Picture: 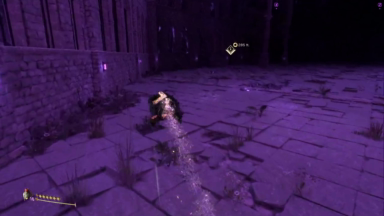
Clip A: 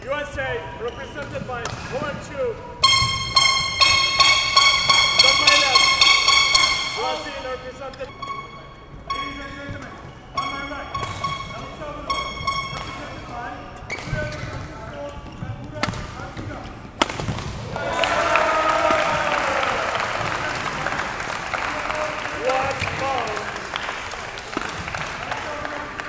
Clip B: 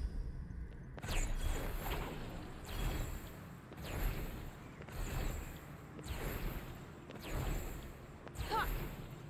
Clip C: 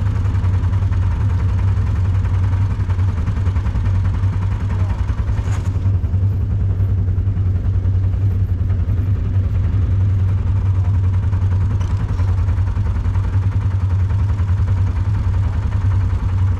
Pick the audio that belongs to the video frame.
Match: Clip B